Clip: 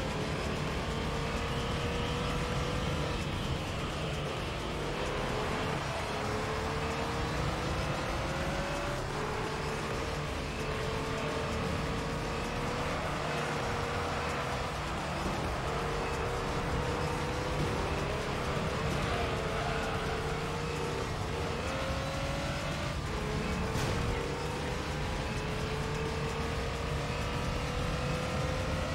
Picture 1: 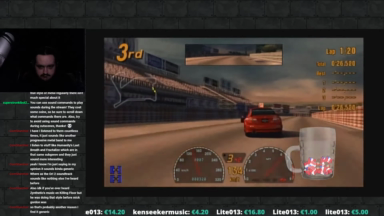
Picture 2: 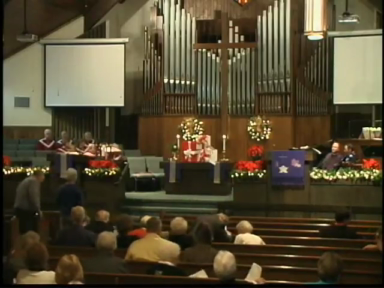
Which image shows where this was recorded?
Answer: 1